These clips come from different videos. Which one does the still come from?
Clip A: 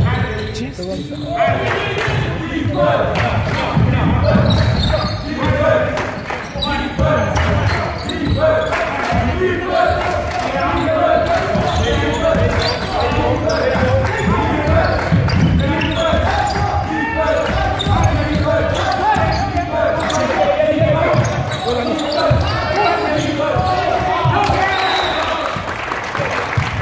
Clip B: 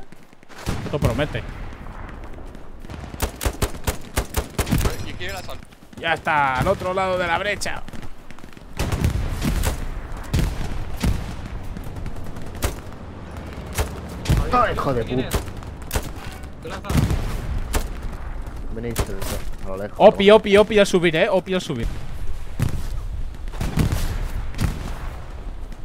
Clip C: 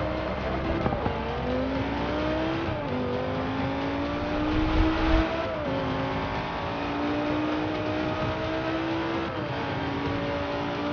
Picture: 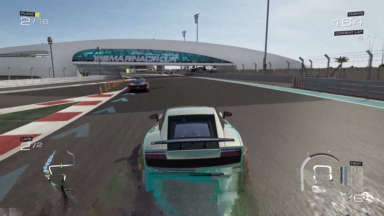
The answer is C